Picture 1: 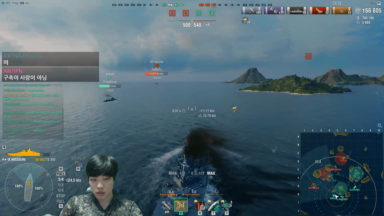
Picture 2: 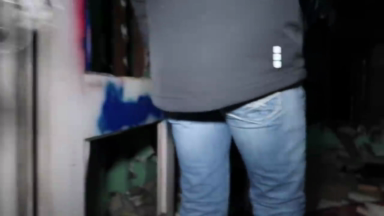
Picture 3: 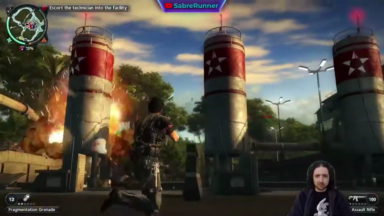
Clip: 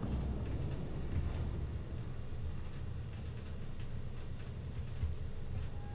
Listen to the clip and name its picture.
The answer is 1